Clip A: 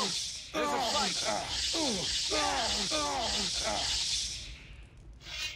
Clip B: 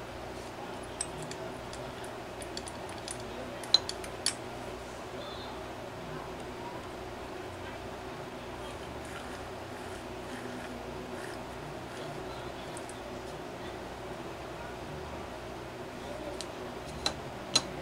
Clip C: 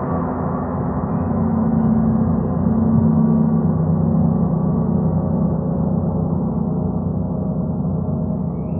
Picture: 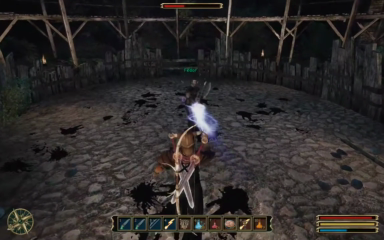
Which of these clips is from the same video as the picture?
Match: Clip A